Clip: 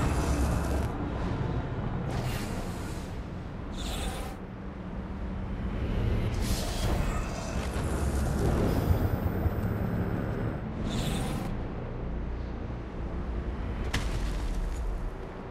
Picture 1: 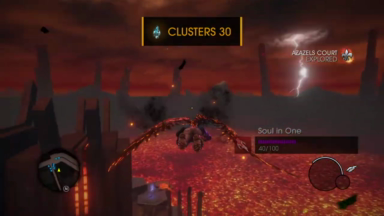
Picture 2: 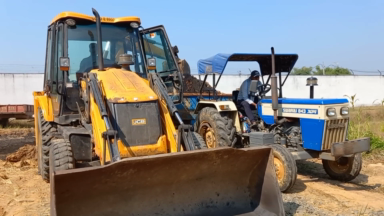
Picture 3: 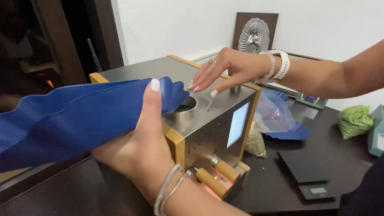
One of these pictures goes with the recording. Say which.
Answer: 1